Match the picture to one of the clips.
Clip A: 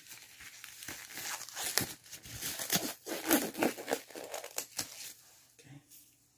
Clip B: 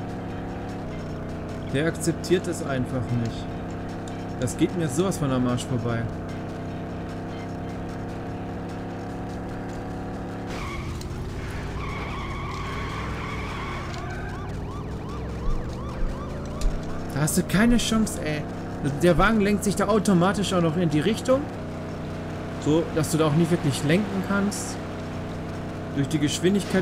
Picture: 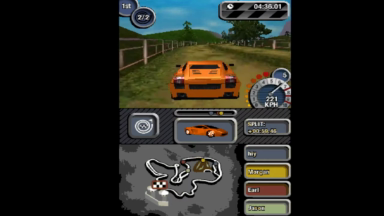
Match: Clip B